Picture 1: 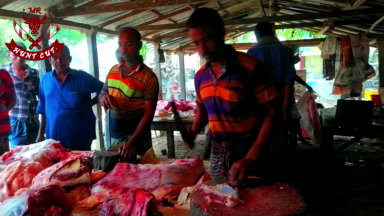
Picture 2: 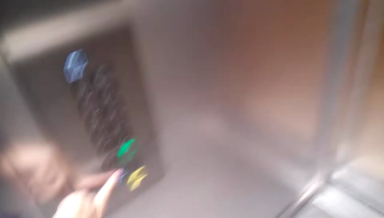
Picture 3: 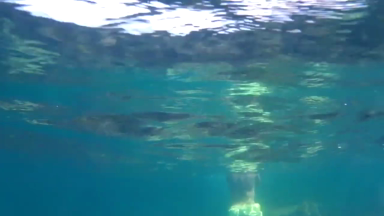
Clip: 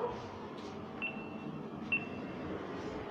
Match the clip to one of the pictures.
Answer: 2